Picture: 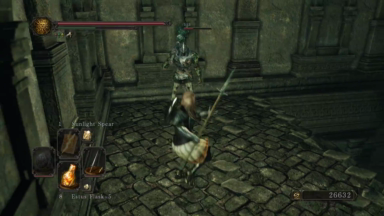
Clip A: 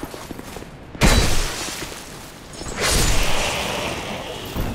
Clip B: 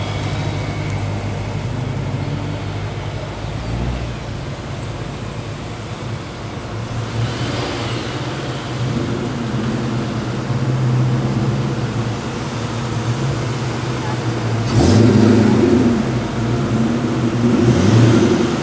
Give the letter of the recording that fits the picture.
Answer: A